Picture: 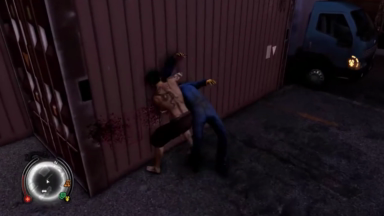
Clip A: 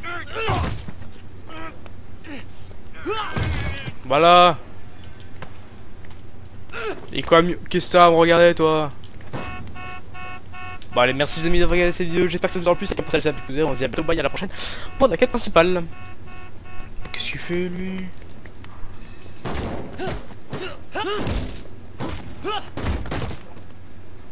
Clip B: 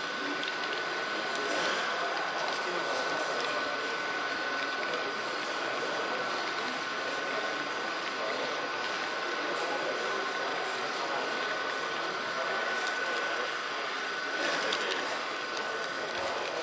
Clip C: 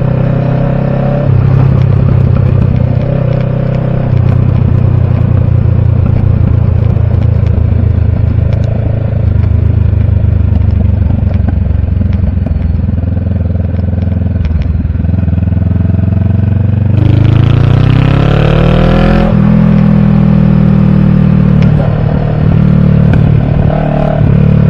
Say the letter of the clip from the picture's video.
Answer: A